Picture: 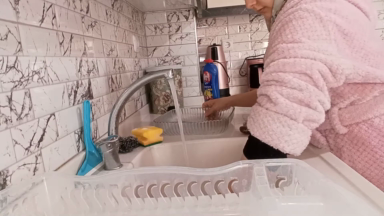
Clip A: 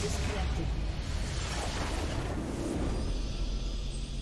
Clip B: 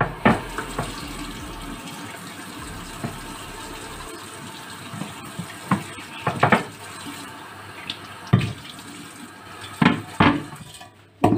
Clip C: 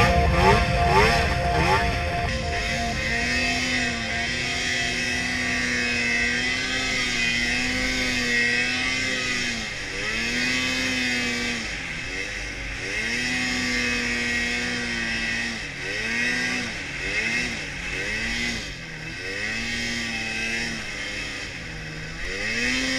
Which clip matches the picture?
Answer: B